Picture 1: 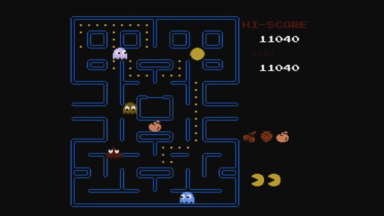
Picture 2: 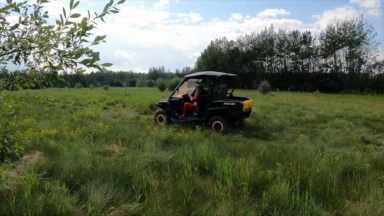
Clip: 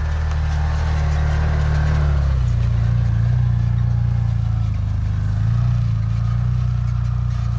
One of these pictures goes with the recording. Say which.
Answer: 2